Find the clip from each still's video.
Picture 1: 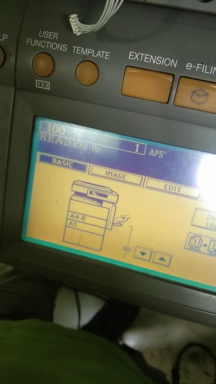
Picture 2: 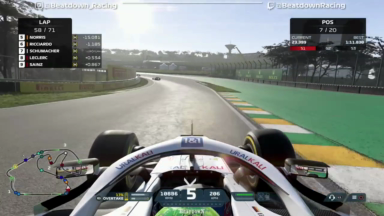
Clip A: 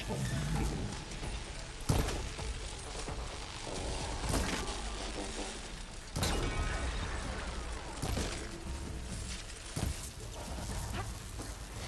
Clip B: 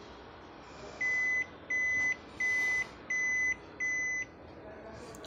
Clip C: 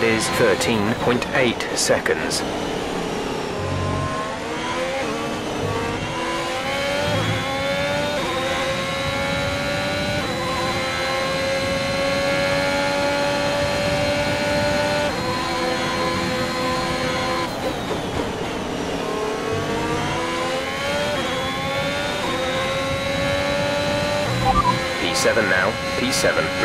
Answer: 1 B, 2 C